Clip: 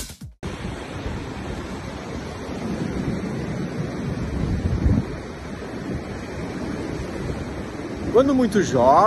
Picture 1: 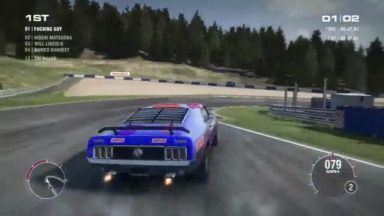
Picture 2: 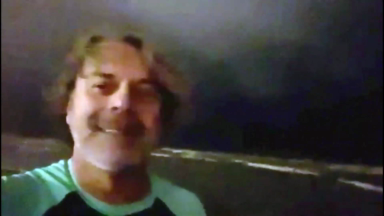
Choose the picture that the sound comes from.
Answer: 2